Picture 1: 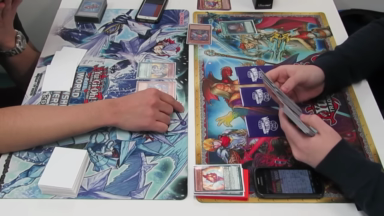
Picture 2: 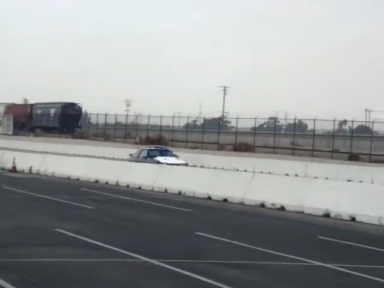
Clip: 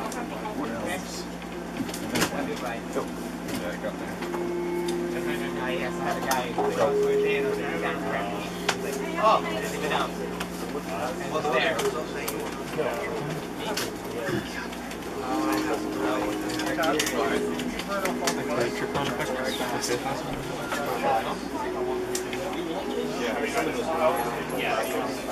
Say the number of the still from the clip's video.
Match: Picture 1